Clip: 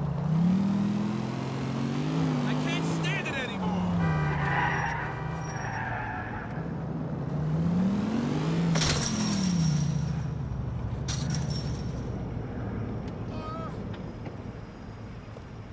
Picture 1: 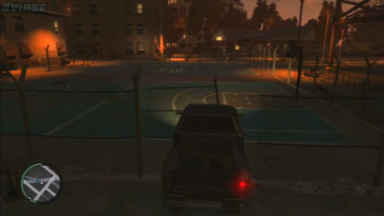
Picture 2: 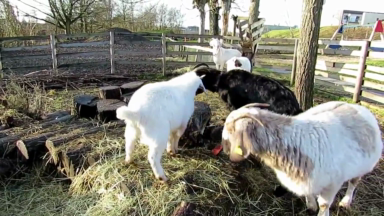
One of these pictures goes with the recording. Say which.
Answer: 1